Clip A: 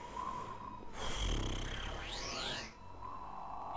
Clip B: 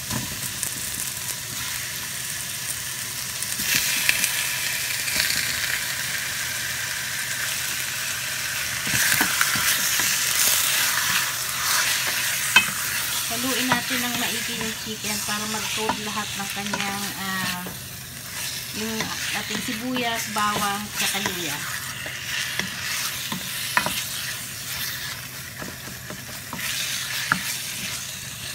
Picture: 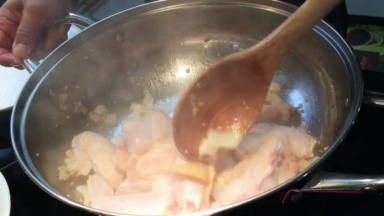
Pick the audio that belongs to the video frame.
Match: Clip B